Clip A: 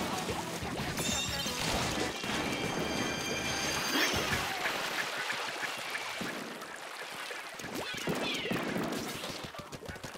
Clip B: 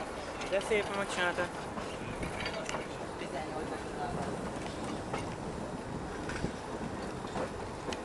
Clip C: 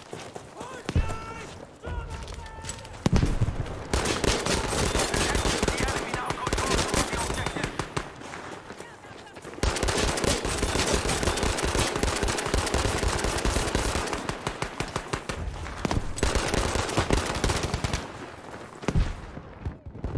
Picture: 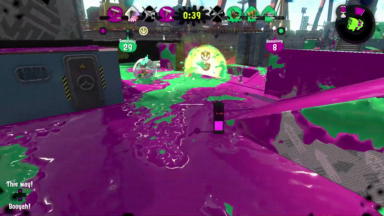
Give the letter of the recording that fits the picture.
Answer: A